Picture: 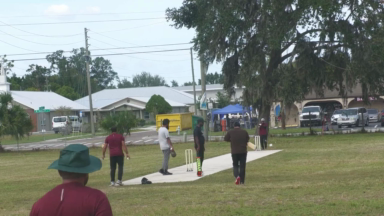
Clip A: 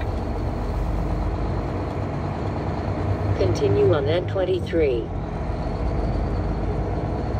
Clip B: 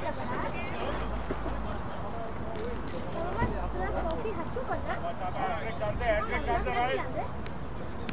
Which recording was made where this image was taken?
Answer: B